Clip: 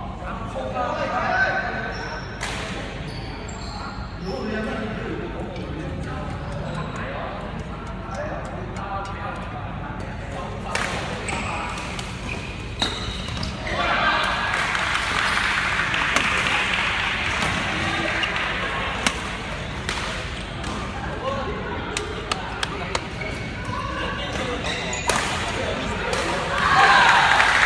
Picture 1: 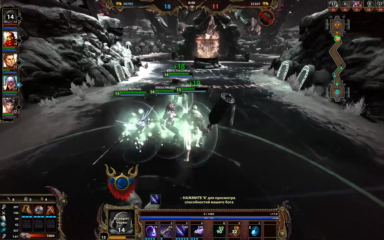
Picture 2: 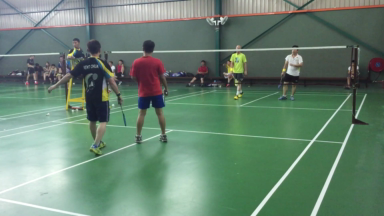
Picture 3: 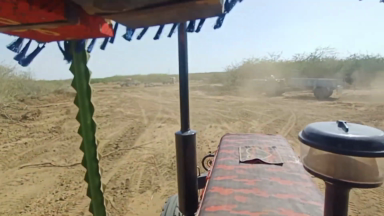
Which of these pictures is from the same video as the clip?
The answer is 2